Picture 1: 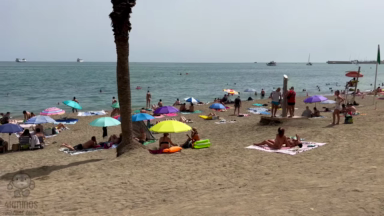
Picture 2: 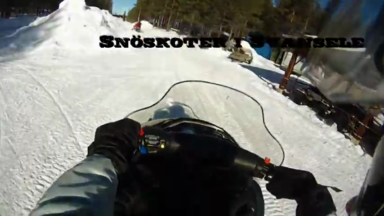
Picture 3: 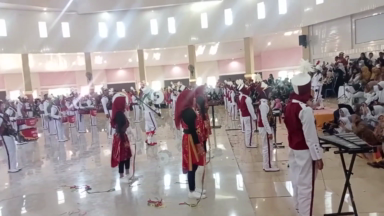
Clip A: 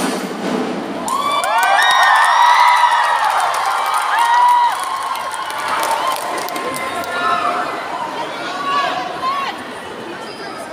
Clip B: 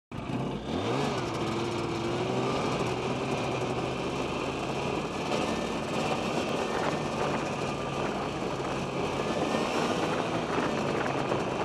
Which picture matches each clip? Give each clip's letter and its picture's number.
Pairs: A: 3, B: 2